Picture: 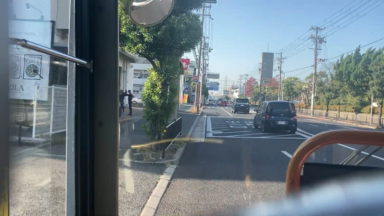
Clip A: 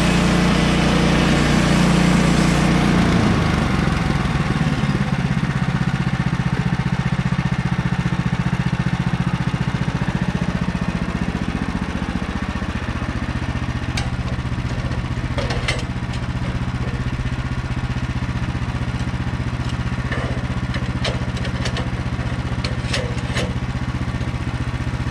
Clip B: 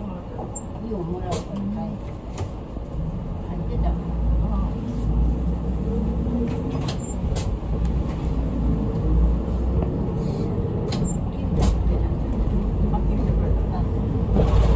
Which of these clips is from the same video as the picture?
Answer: B